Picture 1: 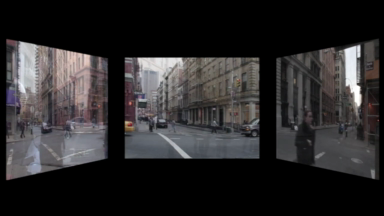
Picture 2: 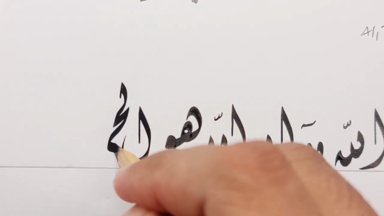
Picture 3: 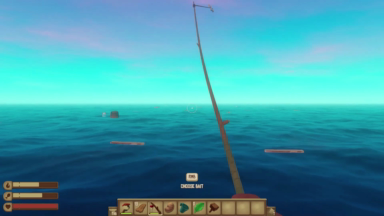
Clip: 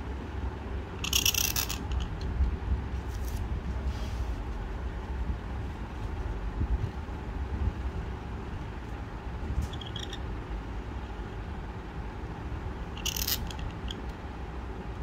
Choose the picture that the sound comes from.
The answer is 2